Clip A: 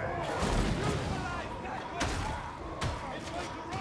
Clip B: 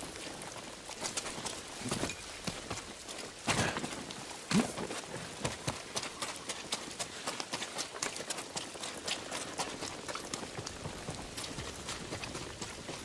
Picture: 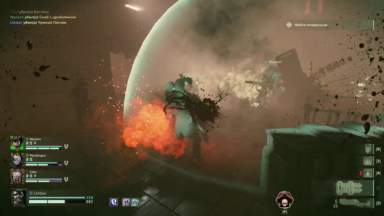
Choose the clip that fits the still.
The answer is A